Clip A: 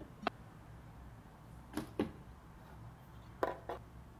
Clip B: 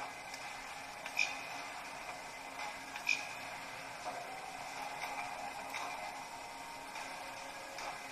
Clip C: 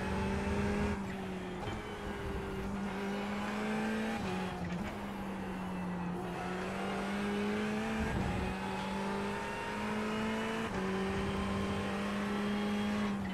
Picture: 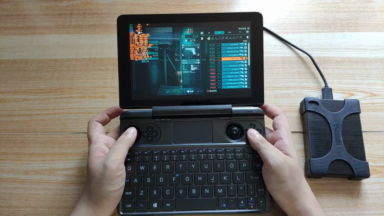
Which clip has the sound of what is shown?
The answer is B